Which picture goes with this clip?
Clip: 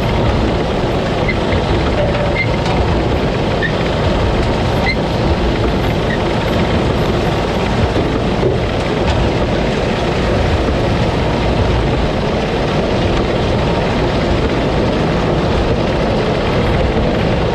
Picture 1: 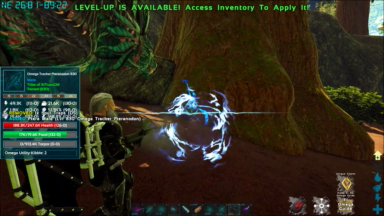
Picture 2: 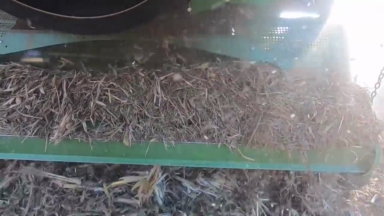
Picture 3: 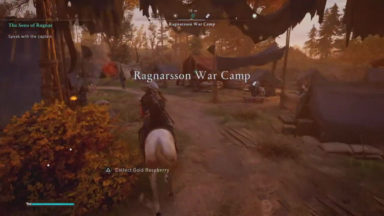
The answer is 2